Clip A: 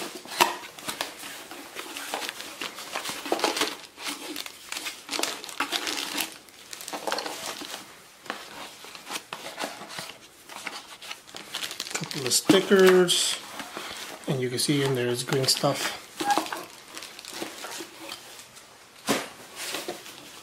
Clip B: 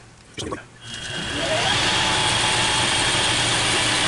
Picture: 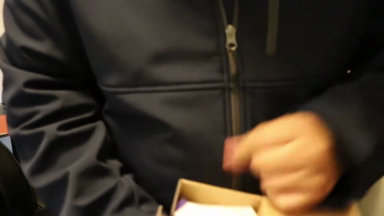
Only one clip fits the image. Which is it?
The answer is A